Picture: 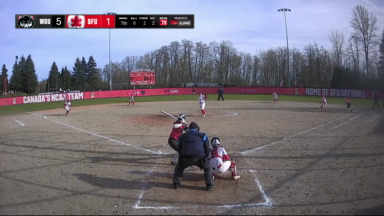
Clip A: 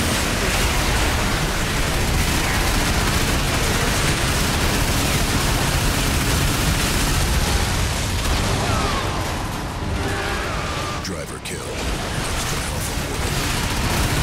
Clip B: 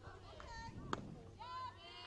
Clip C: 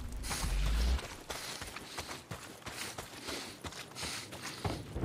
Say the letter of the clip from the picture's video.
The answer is B